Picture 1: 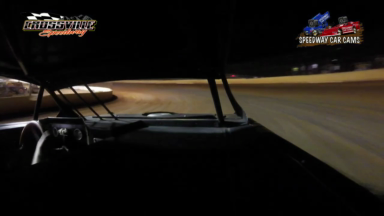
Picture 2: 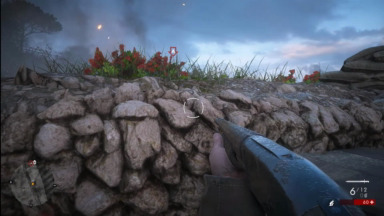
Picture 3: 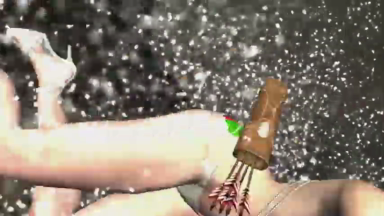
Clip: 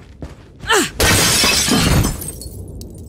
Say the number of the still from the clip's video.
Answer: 3